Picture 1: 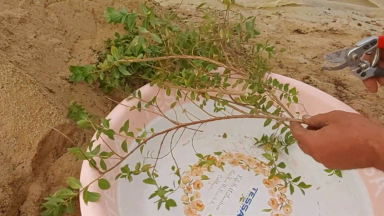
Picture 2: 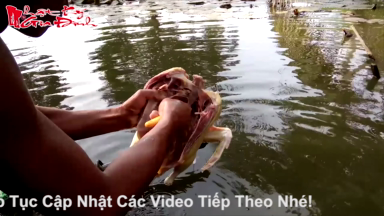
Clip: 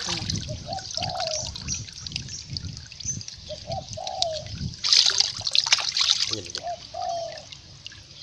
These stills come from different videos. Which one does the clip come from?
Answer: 2